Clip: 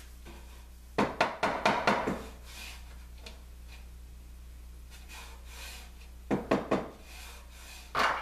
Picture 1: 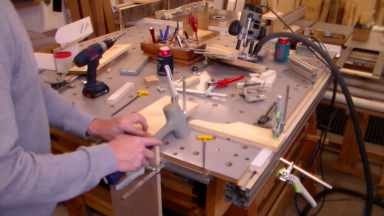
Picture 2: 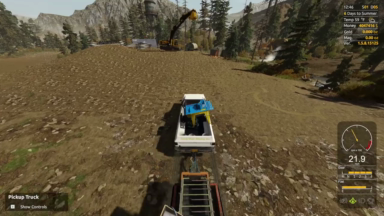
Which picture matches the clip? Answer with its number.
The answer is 1